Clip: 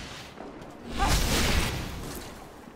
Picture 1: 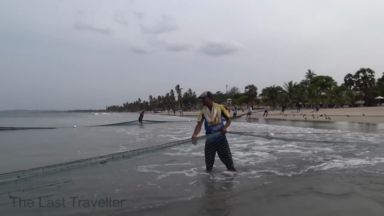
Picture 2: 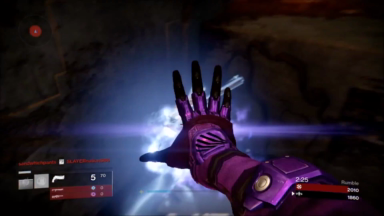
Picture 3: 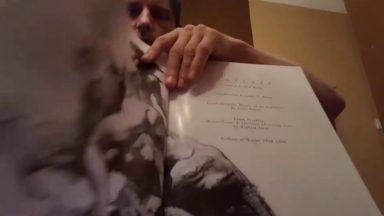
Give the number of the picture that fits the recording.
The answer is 2